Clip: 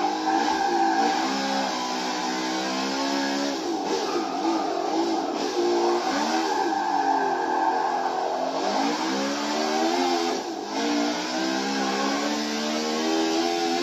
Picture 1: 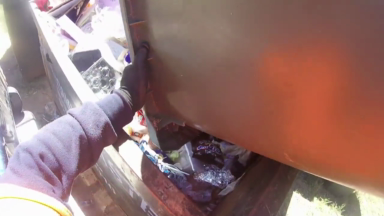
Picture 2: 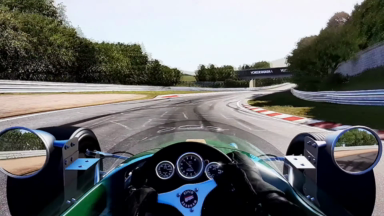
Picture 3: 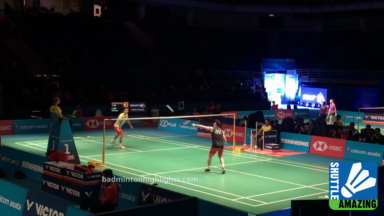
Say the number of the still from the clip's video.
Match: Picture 2